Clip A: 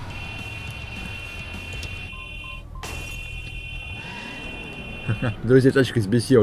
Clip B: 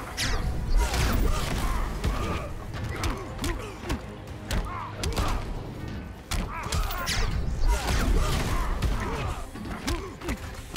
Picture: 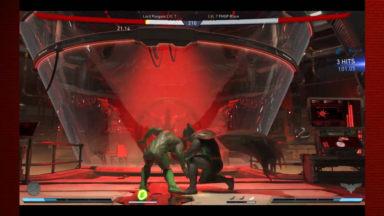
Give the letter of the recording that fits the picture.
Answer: B